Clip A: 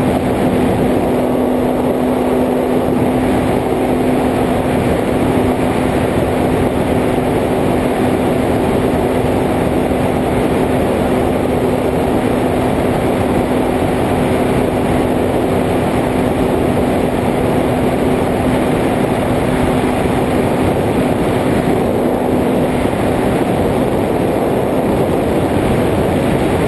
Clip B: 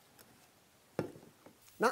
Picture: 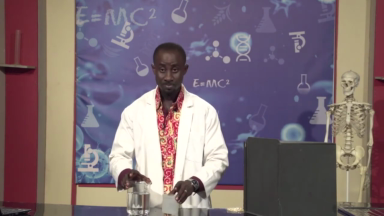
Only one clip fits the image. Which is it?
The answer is B